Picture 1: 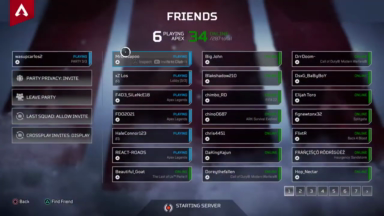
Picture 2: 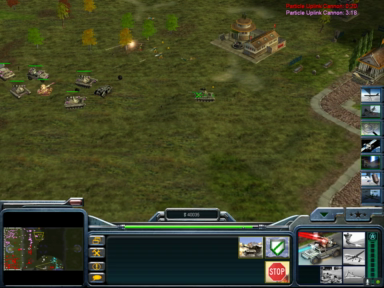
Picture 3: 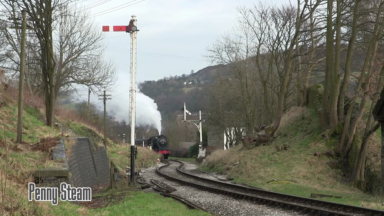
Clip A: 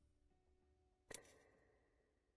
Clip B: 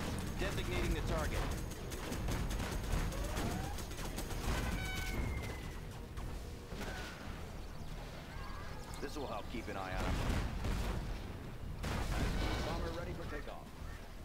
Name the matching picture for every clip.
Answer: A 1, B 2